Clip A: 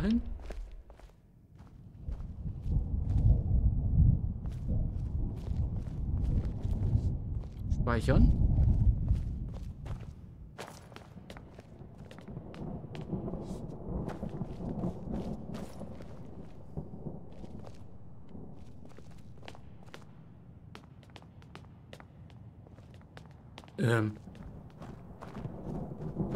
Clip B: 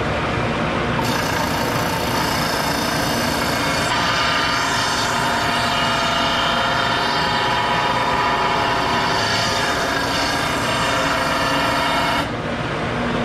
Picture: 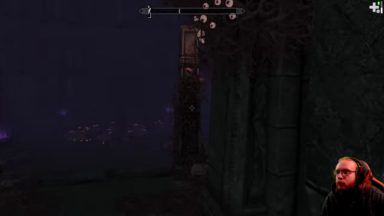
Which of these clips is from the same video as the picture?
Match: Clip A